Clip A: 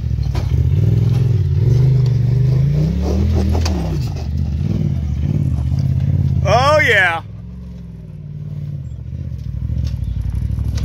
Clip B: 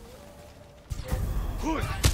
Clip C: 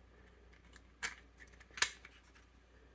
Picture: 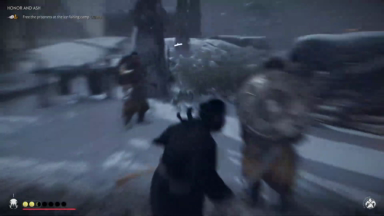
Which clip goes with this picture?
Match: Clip B